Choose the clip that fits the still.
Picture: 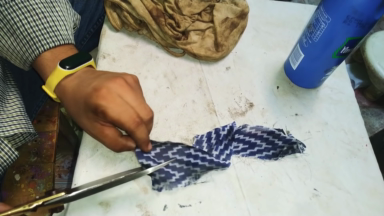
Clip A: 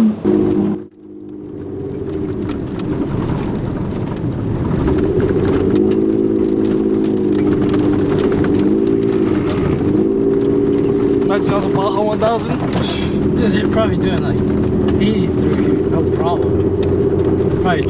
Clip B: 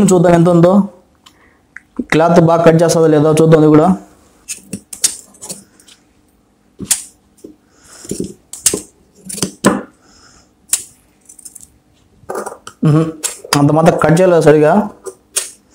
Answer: B